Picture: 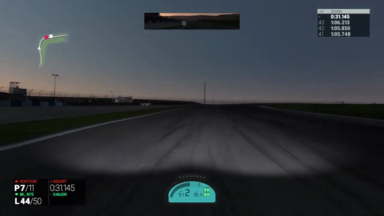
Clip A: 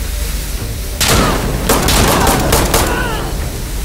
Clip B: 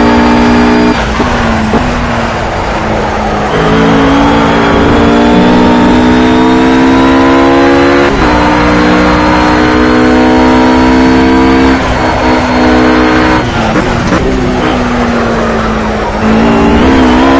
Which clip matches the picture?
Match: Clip B